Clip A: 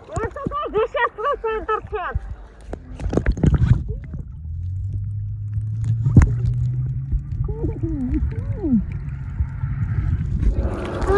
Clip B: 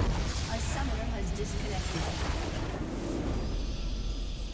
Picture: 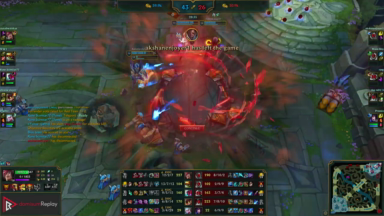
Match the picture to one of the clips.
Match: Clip B